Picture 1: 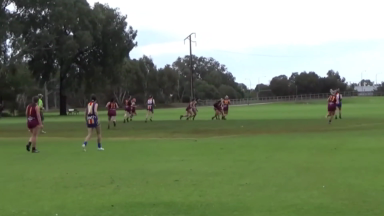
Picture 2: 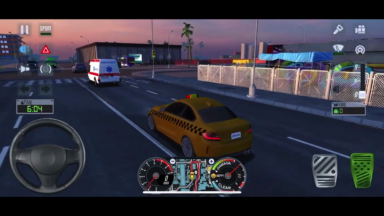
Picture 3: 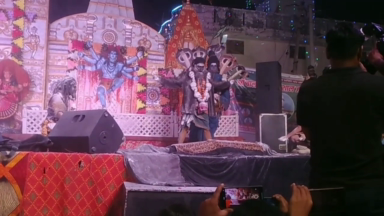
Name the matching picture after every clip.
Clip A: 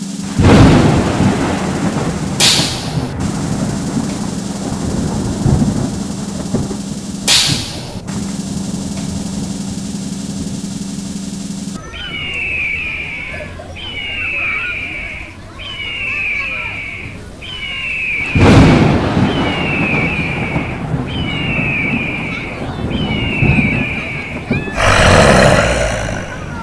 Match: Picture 3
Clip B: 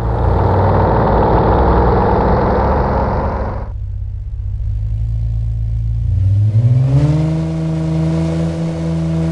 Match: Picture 2